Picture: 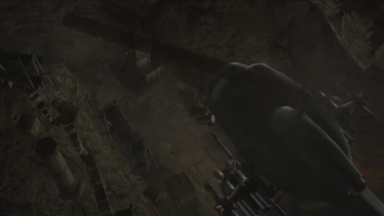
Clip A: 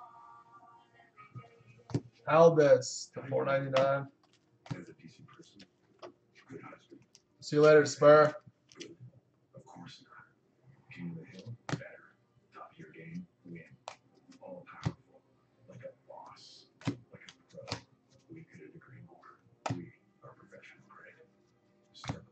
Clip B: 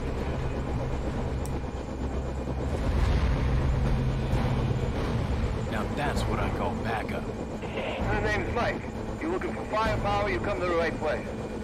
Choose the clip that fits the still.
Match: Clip B